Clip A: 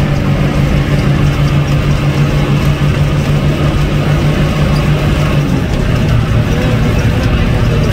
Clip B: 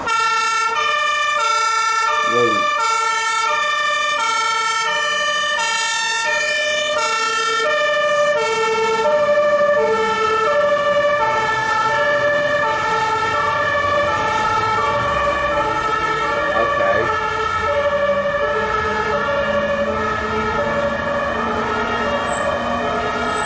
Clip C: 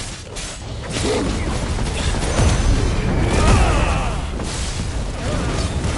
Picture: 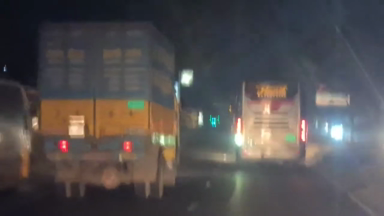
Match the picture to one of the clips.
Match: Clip A